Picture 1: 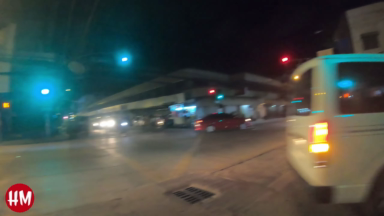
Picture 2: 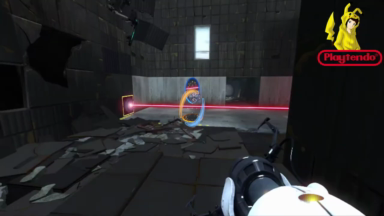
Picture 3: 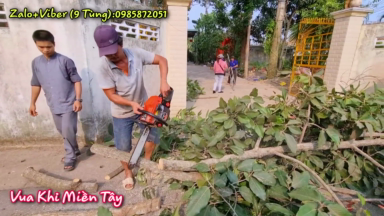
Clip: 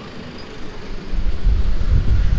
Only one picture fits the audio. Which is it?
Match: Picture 1